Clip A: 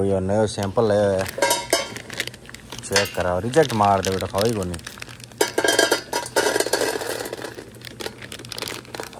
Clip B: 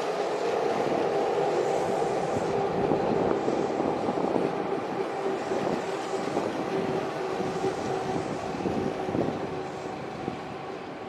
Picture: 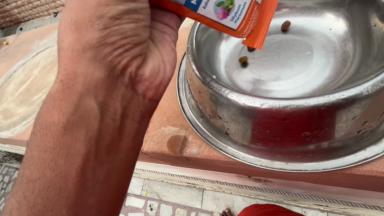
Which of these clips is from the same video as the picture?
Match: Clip A